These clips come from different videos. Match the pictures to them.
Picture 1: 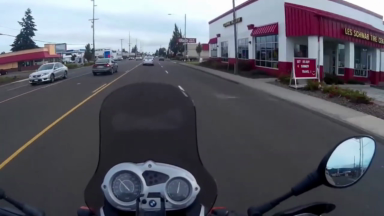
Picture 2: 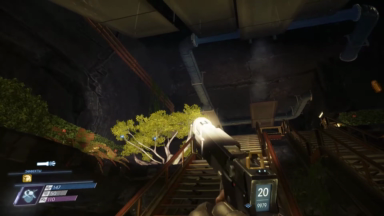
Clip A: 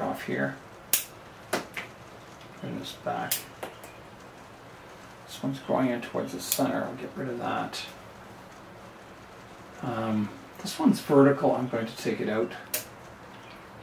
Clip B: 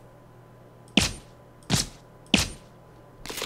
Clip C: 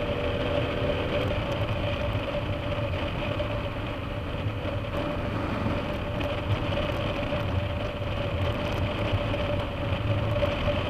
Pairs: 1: C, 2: B